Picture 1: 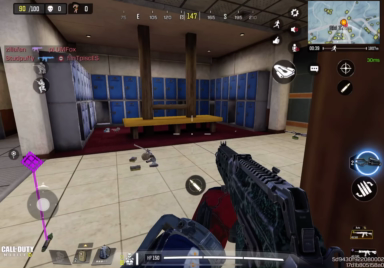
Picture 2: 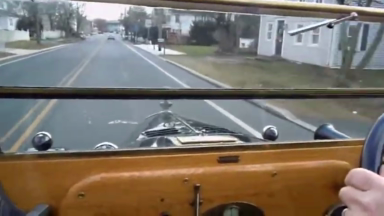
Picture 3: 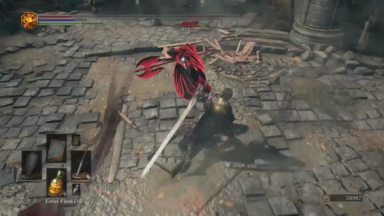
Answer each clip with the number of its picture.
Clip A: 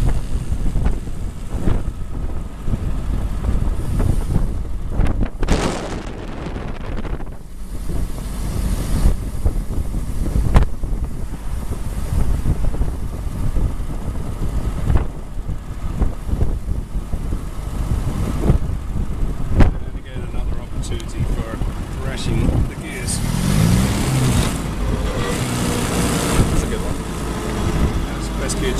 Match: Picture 2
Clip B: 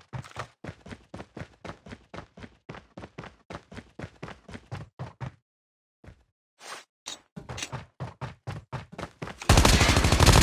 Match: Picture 1